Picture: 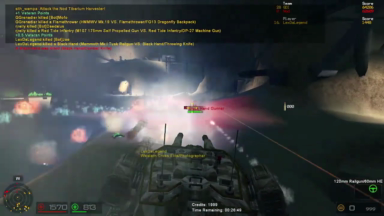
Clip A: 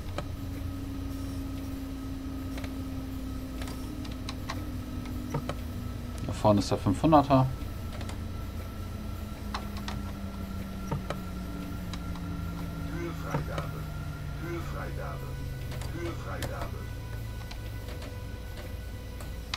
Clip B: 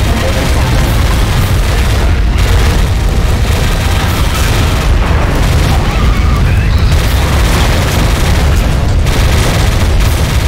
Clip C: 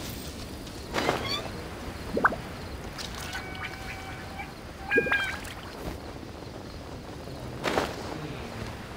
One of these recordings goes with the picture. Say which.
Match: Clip B